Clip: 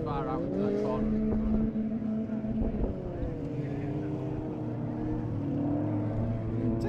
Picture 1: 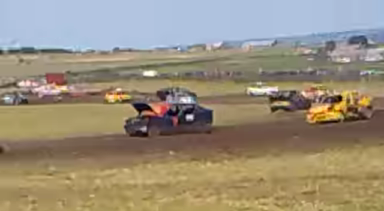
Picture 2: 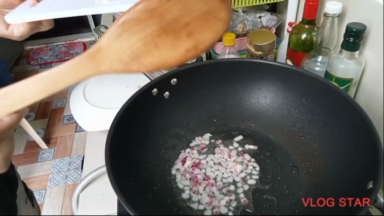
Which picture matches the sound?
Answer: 1